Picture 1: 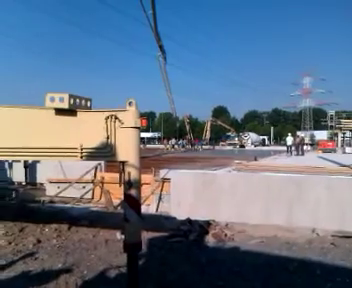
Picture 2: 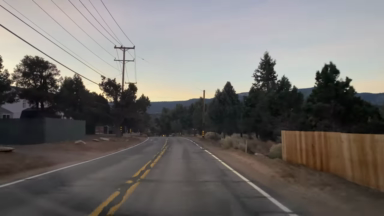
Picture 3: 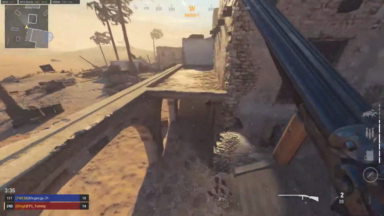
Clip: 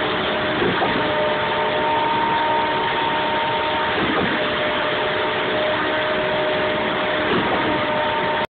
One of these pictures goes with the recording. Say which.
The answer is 1